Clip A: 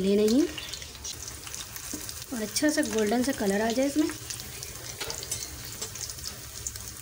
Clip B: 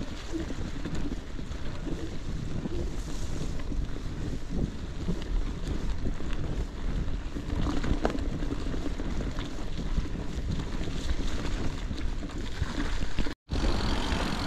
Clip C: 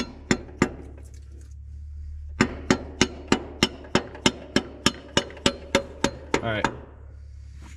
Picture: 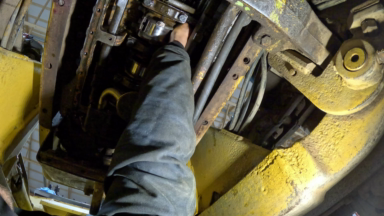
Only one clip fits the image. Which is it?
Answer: C